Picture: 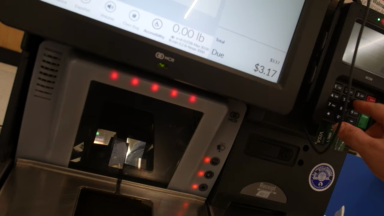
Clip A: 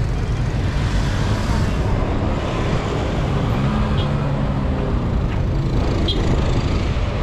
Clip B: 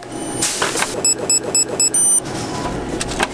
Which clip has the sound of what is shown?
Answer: B